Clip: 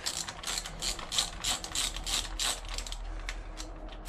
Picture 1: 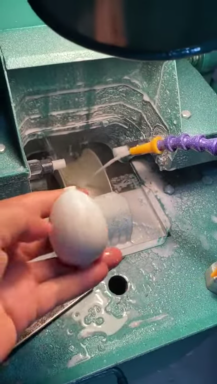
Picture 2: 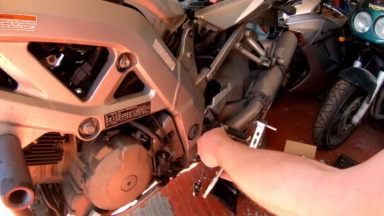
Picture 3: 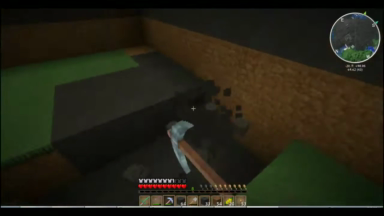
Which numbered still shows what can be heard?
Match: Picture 2